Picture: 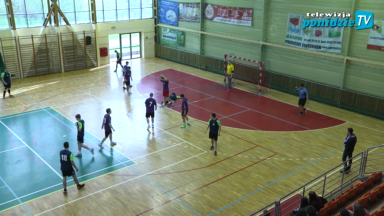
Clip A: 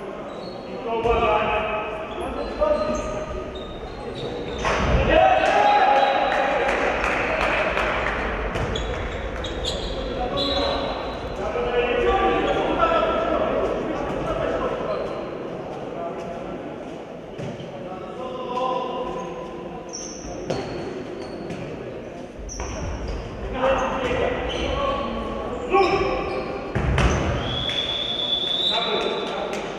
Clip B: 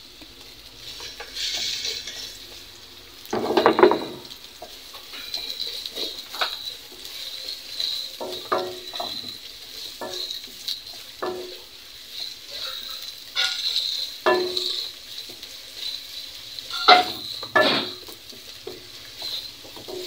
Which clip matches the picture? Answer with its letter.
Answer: A